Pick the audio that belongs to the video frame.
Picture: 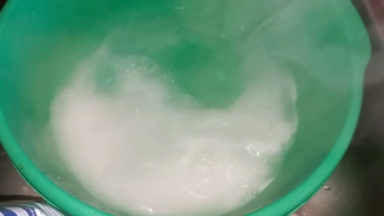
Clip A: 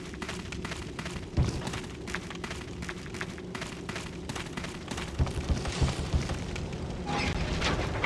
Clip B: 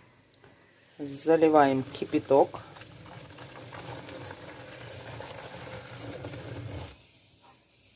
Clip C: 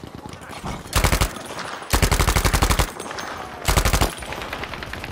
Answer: B